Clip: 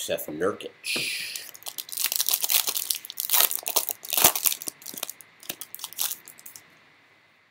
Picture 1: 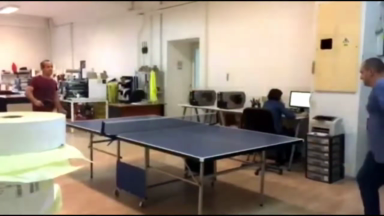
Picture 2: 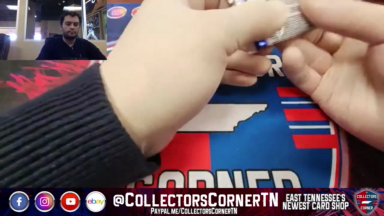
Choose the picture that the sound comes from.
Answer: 2